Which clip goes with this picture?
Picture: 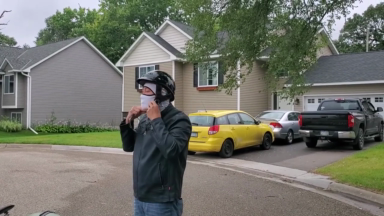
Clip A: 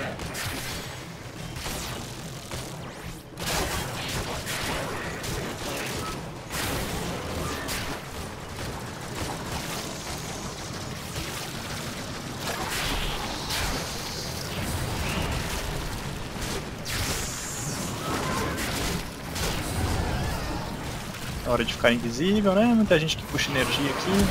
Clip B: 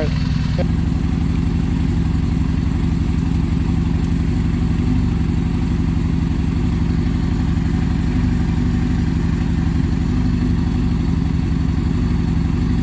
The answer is B